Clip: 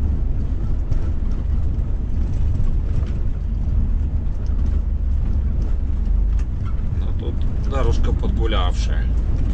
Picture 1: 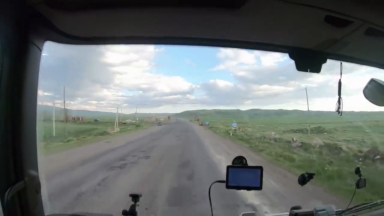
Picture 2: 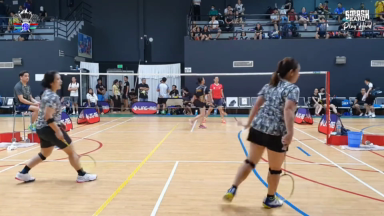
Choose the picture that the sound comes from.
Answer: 1